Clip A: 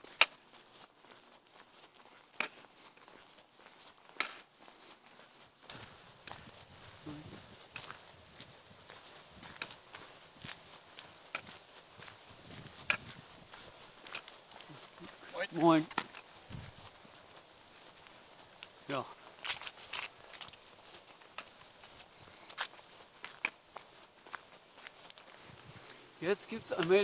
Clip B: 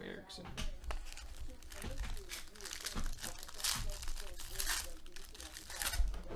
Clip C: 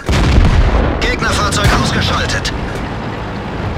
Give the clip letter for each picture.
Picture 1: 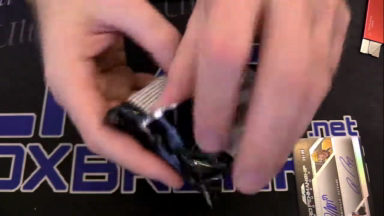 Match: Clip B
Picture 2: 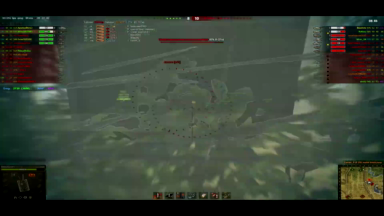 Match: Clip C